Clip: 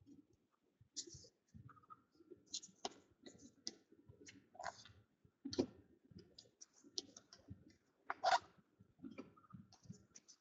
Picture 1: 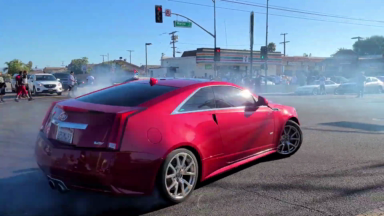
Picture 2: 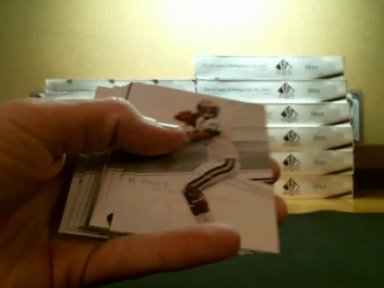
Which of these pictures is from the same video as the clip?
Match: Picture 2